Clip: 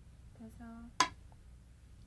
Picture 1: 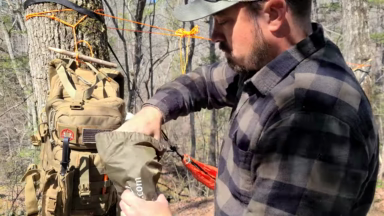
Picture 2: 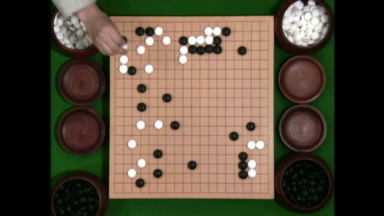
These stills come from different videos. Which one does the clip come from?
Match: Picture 2